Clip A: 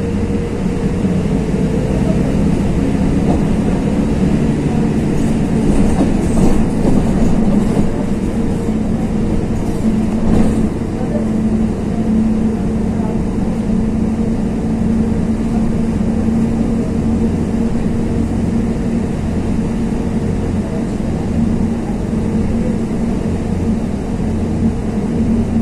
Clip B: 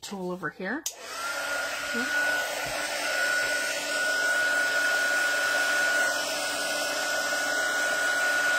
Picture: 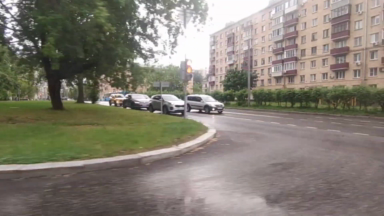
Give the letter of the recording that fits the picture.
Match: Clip A